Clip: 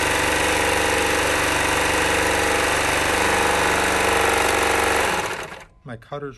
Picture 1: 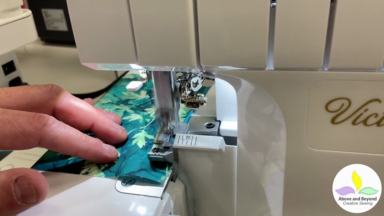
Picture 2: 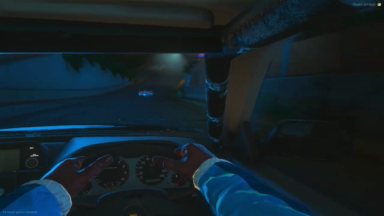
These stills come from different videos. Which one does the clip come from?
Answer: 1